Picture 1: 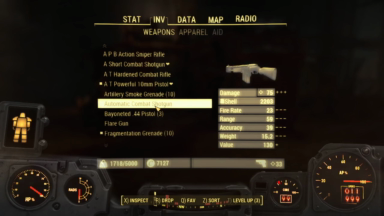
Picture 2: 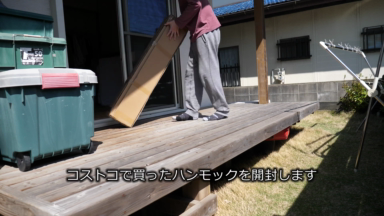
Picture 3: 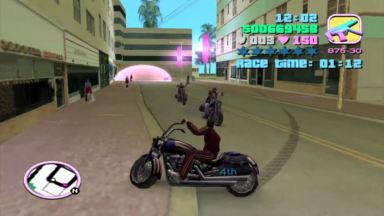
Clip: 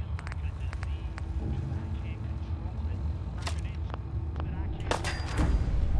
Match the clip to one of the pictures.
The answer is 1